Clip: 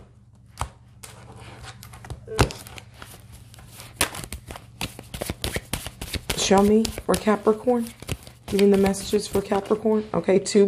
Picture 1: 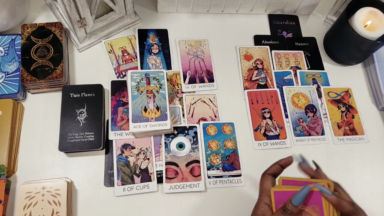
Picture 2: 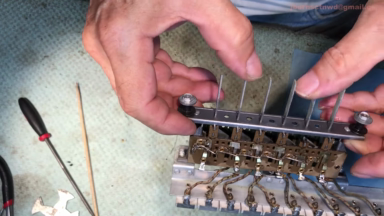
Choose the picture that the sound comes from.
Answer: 1